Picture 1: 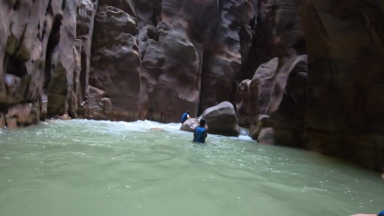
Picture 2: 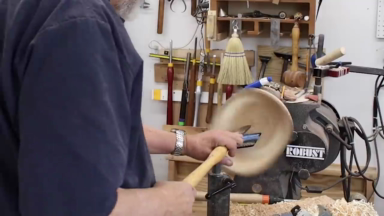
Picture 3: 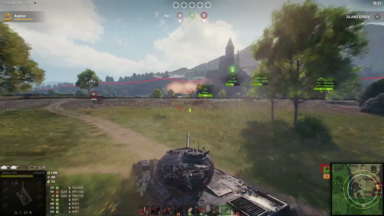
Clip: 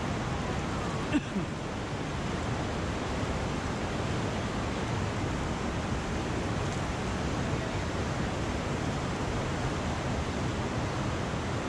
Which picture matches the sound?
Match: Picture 1